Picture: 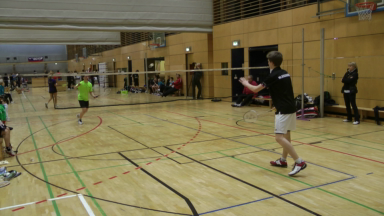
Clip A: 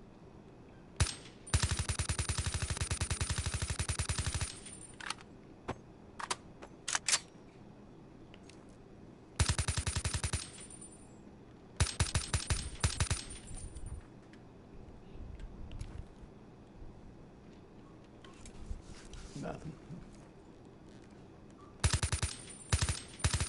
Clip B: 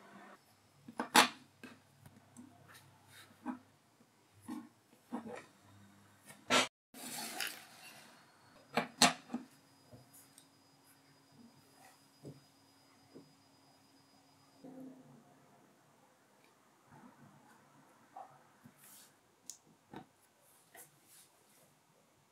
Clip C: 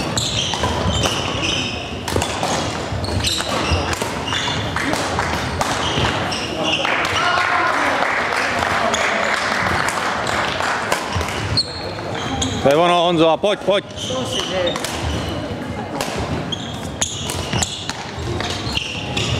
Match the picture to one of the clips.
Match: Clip C